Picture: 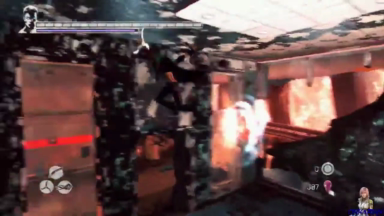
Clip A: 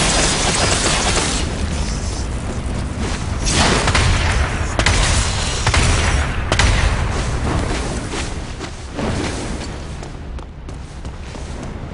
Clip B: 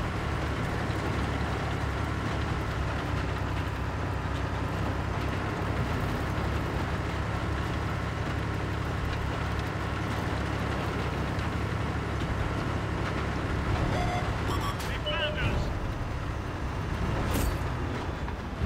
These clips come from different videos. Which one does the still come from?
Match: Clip A